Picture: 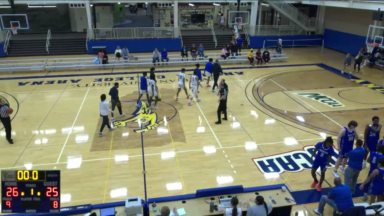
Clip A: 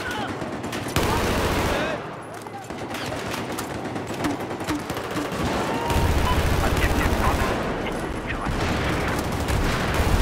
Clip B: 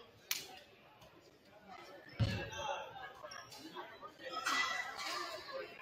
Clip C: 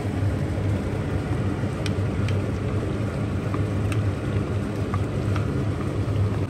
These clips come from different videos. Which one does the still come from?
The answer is B